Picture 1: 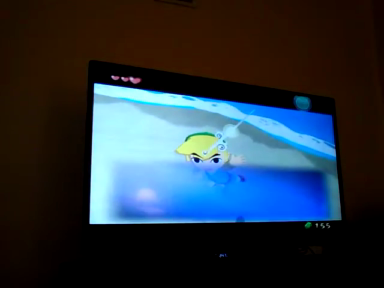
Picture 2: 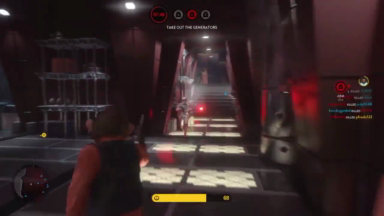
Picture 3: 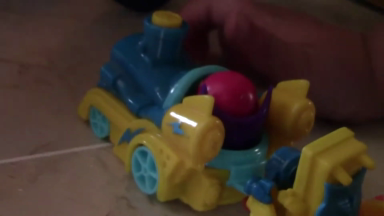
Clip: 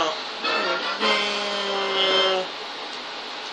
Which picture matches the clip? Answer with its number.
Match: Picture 1